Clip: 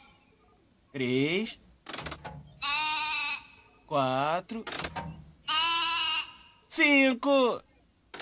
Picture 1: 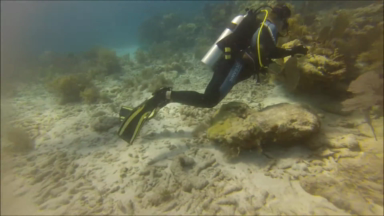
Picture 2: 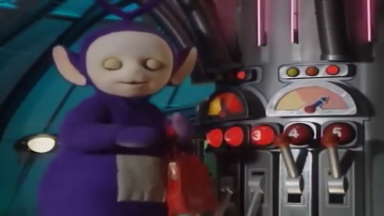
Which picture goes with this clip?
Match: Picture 2